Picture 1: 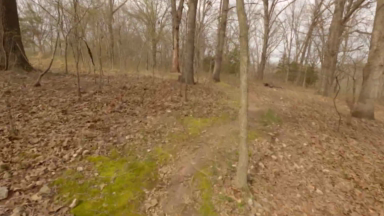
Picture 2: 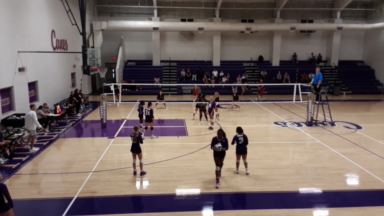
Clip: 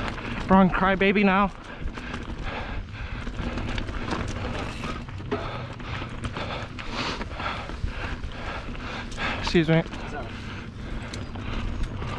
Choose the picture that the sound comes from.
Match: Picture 1